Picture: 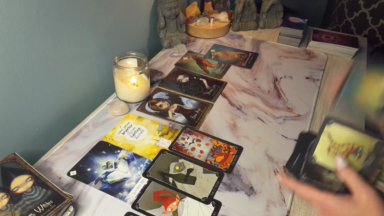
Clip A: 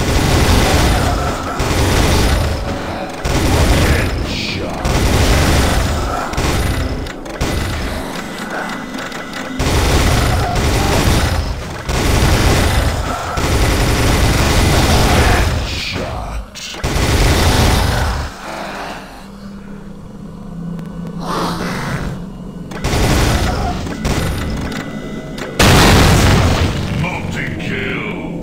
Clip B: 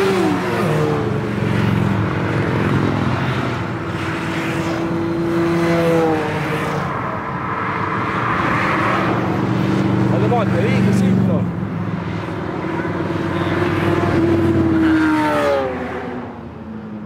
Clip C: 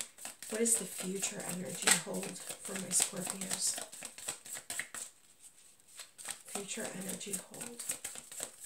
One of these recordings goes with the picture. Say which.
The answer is C